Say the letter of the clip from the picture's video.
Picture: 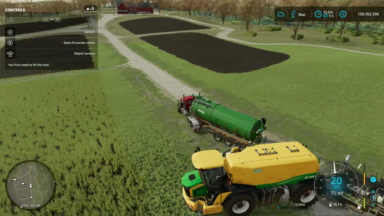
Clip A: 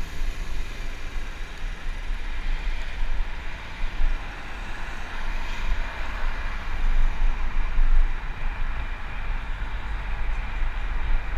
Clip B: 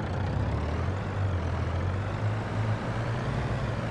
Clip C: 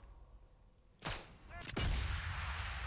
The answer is B